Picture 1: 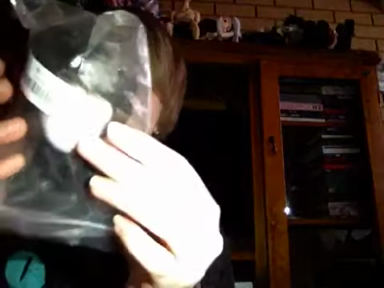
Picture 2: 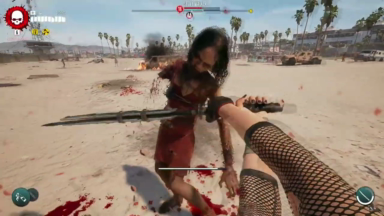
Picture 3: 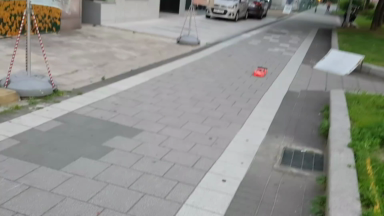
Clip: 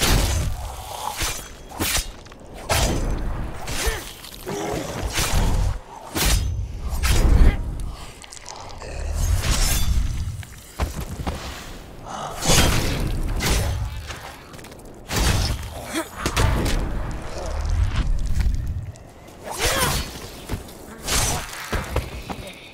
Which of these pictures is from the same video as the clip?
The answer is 2